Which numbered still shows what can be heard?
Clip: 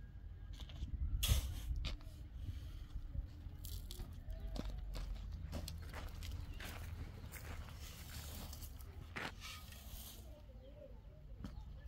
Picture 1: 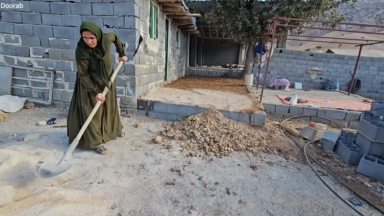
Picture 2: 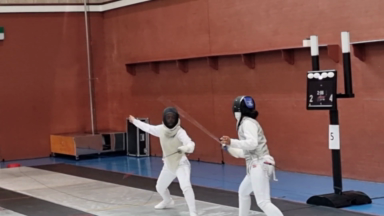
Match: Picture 1